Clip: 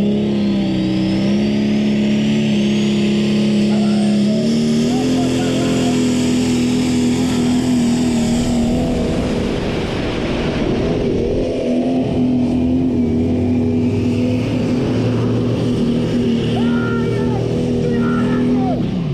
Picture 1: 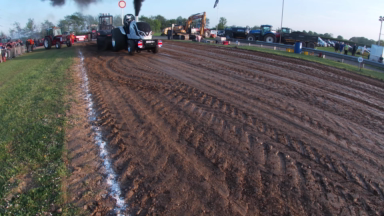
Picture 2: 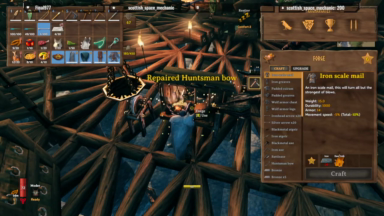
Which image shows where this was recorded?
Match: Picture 1